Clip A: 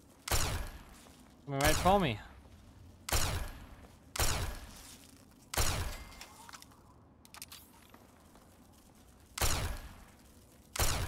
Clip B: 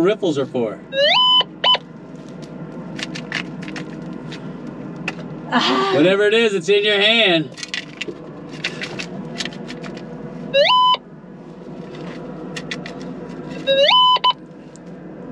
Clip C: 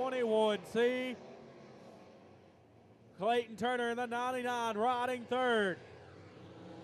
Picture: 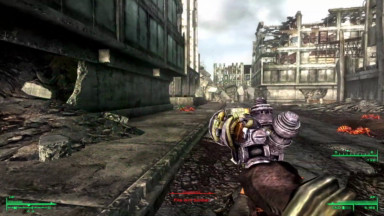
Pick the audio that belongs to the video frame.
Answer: A